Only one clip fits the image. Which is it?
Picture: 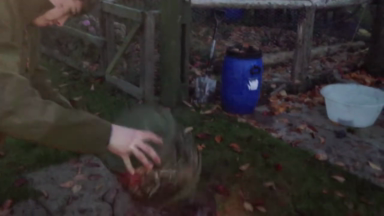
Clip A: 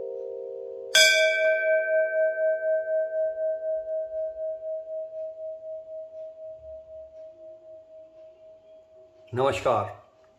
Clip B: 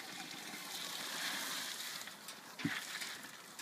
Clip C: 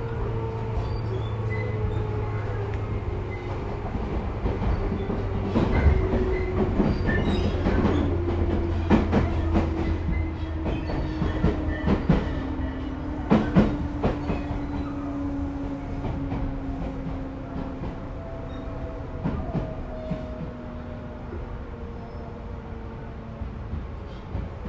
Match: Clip B